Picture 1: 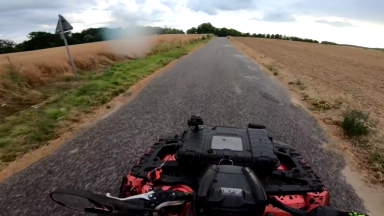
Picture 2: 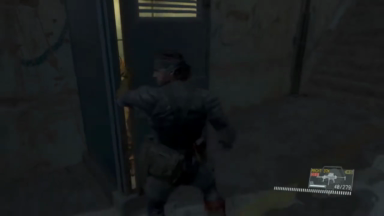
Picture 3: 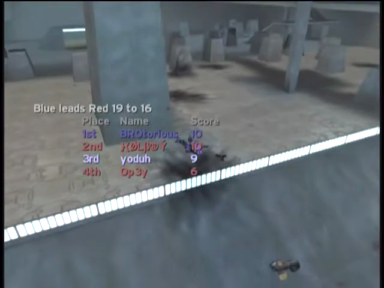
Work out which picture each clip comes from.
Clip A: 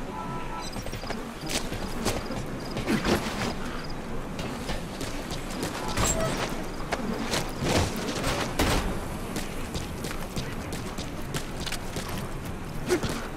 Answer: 2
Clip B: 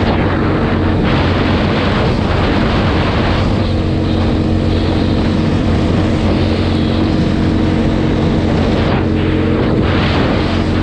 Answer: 1